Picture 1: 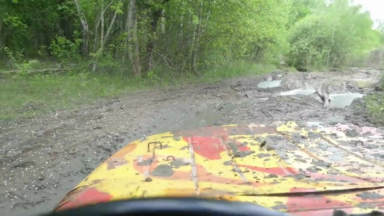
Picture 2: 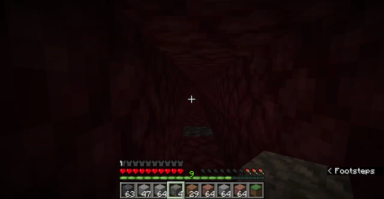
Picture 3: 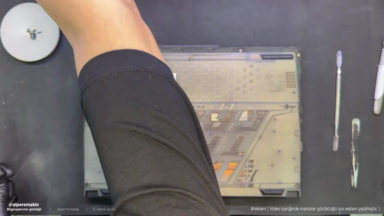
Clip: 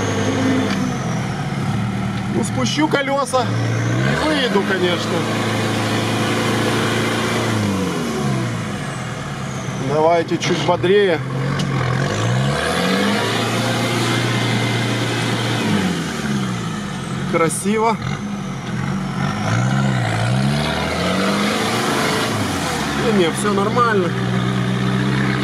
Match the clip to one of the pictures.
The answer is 1